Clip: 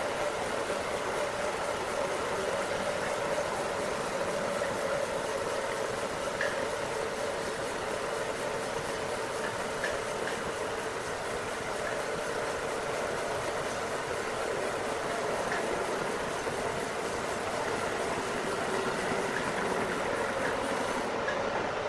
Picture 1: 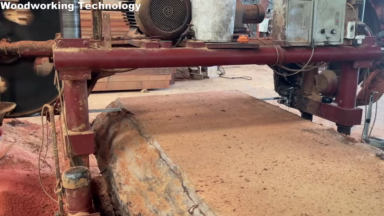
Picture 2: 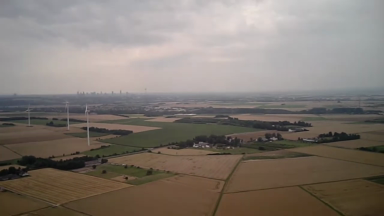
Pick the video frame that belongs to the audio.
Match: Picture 1